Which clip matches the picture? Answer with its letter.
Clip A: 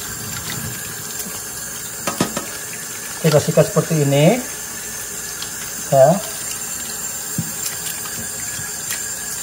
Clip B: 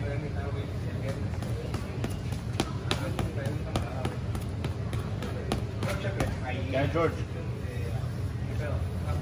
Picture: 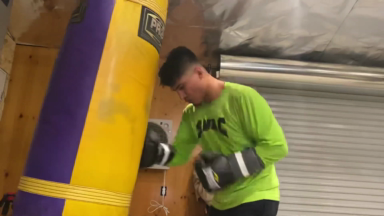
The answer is B